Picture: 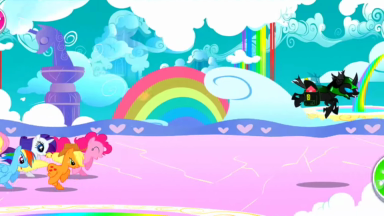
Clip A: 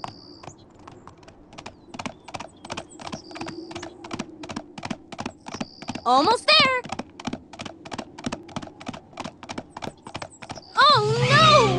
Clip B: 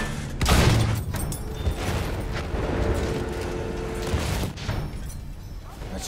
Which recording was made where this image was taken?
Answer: A